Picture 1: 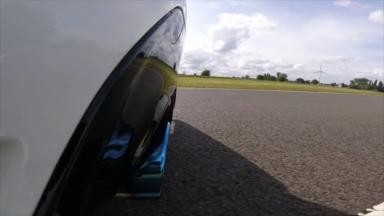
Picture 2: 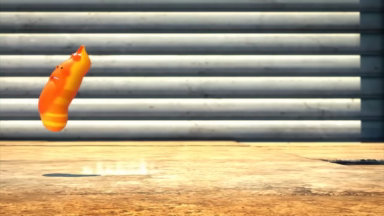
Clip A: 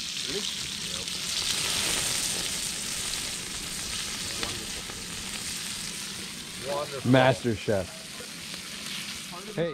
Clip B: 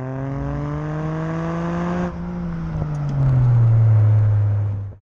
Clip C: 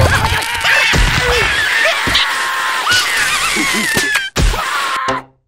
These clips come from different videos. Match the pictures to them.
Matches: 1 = B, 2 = C